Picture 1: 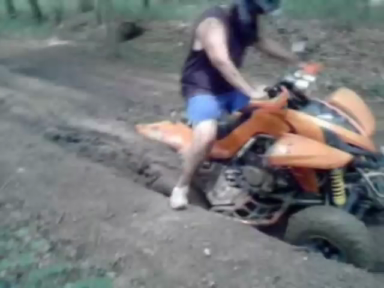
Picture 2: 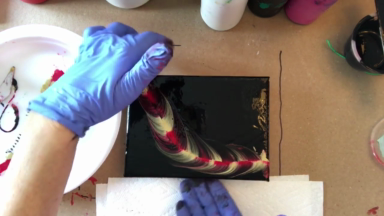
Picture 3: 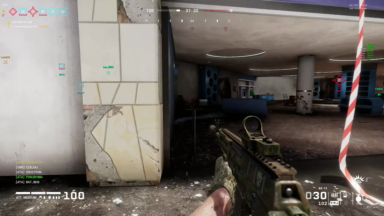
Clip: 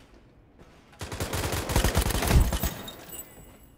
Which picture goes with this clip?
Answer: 3